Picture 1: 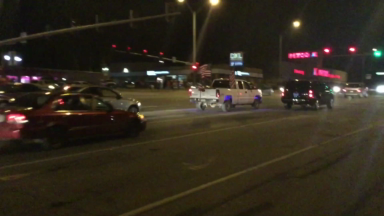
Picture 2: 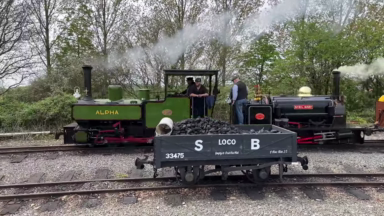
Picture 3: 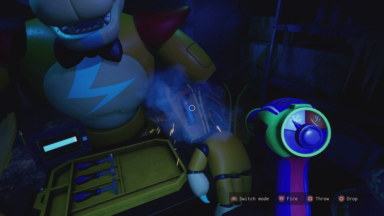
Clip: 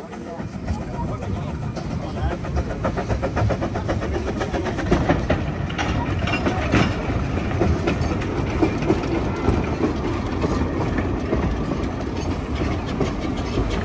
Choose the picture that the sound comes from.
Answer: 2